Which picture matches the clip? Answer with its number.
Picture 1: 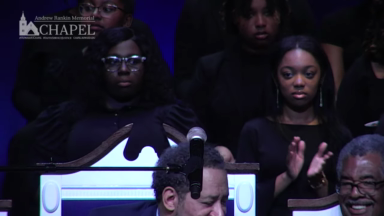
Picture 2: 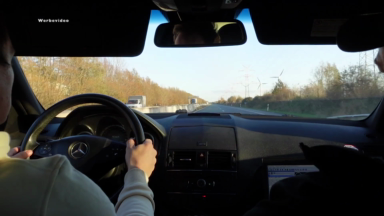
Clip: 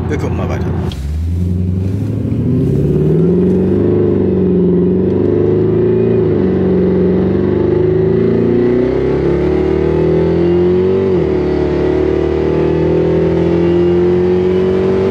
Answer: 2